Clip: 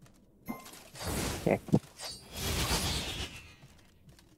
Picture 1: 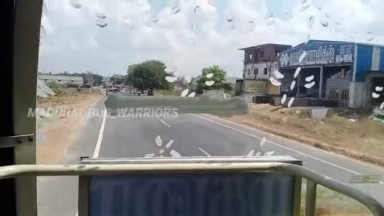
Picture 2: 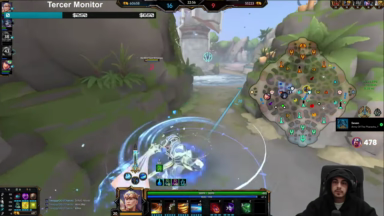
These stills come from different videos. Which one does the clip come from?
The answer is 2